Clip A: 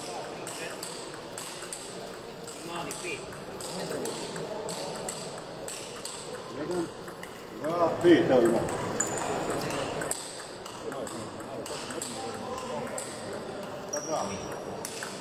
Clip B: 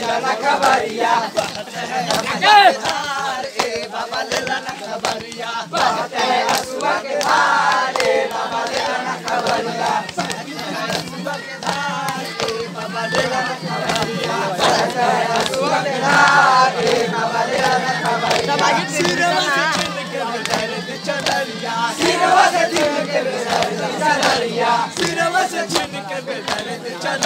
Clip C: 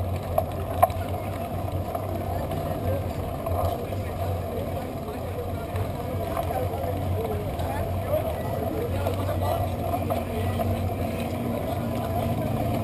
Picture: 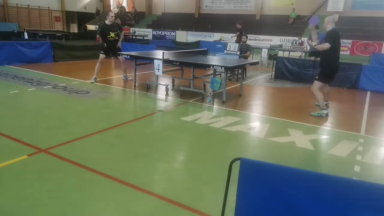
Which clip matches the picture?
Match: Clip A